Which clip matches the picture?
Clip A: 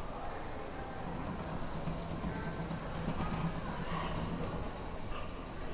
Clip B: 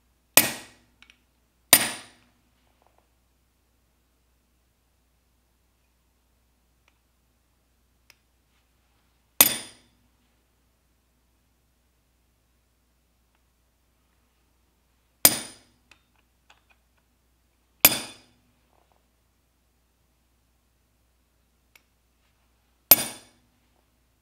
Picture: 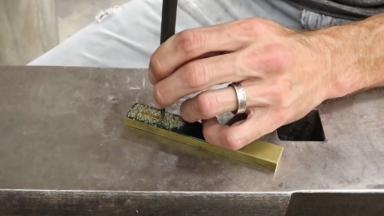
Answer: B